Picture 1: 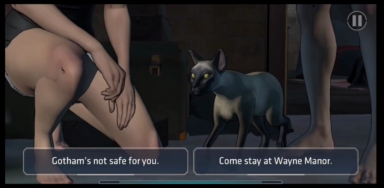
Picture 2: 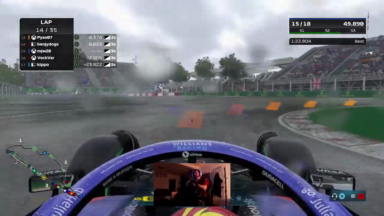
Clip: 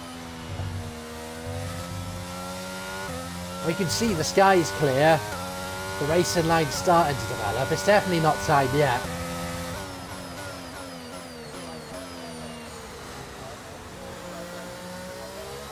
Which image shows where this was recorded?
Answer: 2